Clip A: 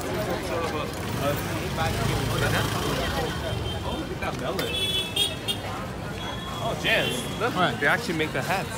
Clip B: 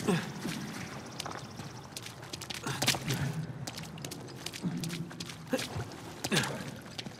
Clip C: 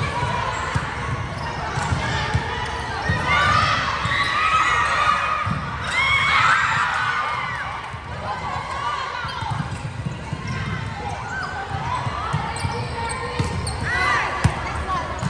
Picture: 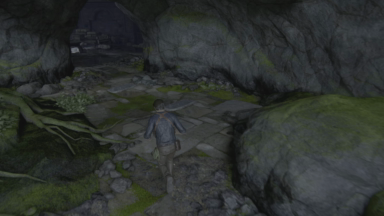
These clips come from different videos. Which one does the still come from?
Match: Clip B